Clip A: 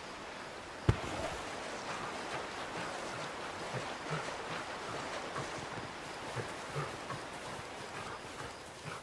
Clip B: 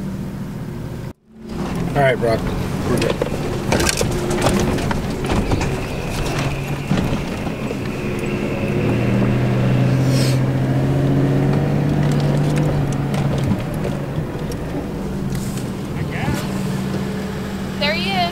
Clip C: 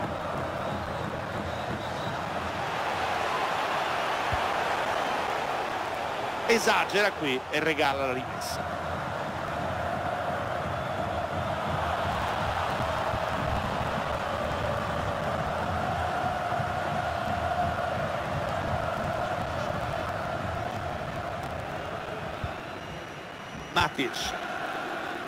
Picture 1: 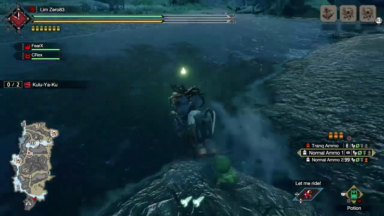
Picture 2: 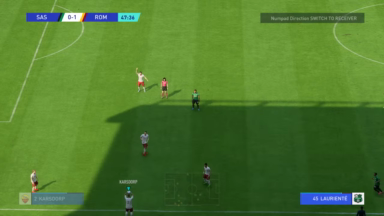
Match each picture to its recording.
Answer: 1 A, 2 C